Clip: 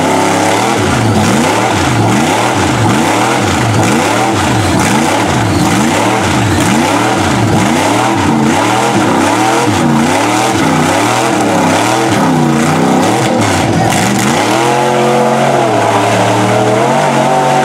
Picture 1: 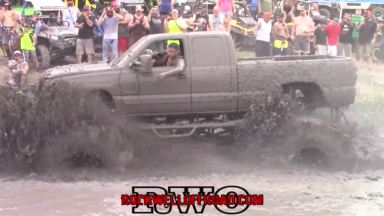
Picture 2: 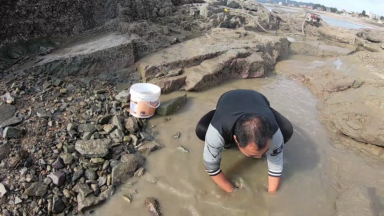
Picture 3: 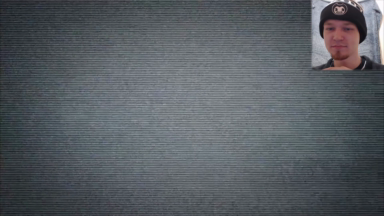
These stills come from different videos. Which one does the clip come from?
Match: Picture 1